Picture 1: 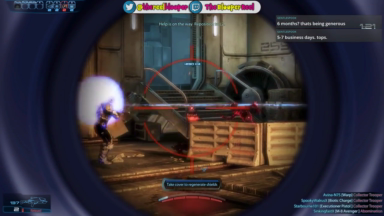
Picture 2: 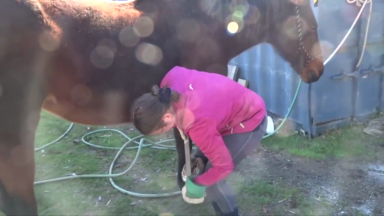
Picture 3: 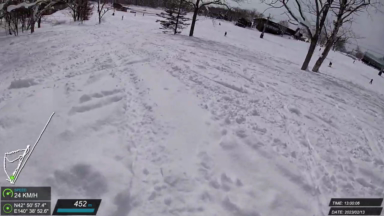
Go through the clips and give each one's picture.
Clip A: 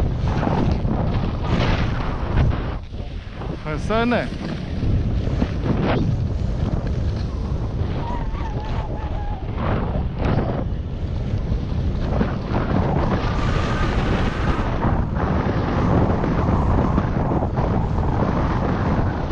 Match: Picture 3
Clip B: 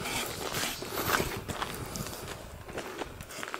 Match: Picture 2